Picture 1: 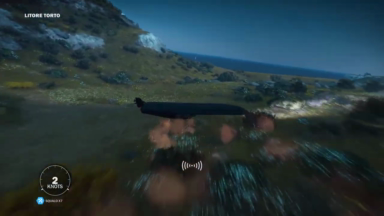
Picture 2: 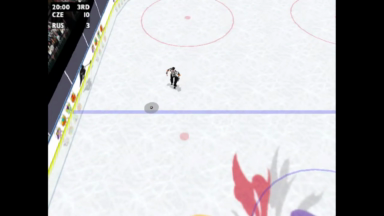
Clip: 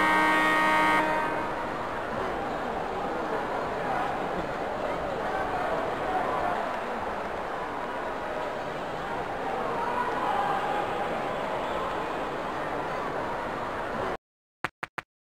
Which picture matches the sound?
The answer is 2